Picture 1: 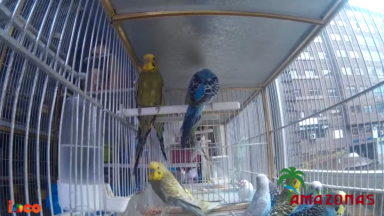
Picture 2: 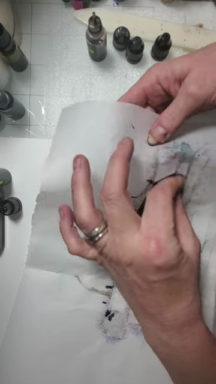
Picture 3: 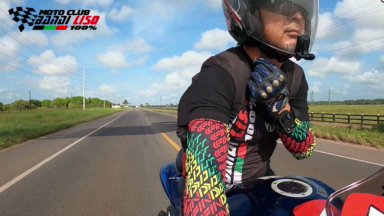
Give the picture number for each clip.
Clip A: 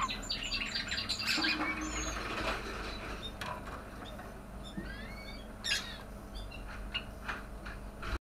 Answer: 1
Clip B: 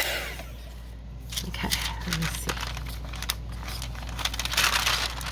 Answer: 2